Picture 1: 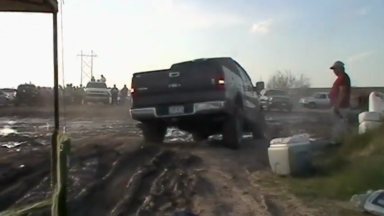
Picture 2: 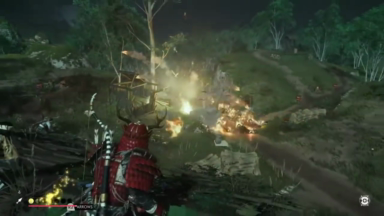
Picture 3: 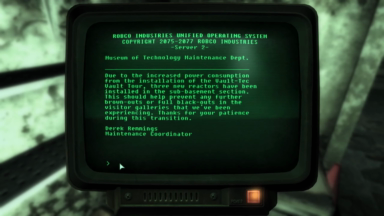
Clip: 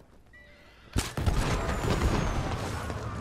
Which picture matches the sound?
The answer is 2